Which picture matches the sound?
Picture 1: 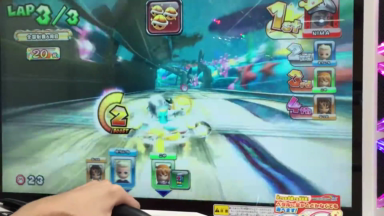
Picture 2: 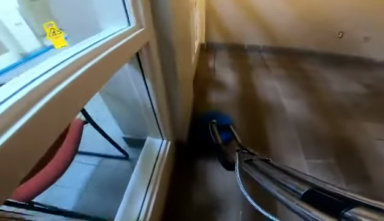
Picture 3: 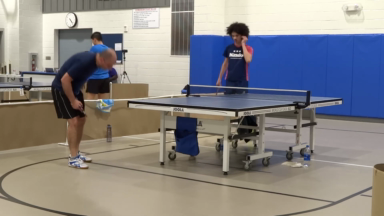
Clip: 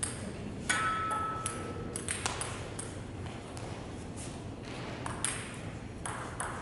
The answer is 3